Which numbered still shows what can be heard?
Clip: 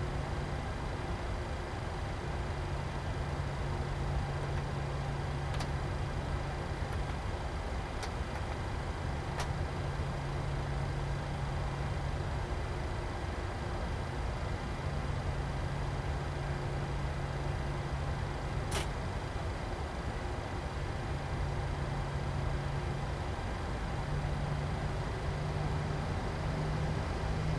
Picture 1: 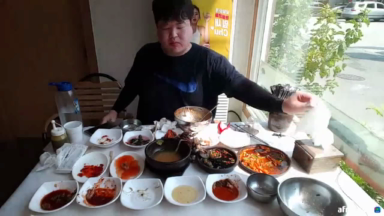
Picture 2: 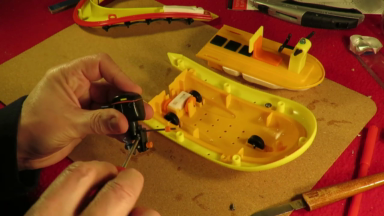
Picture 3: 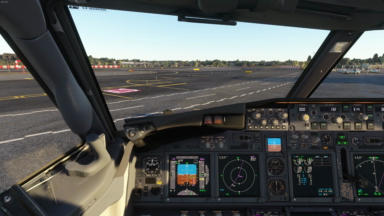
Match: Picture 3